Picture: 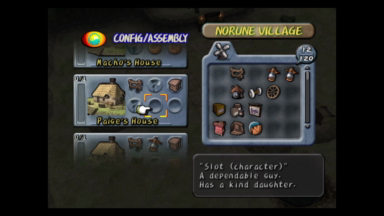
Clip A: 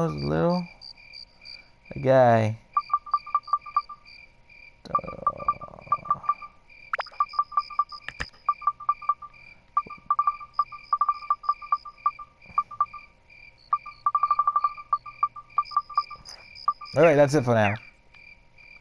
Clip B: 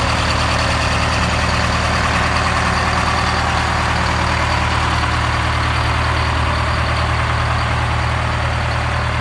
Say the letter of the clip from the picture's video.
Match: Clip A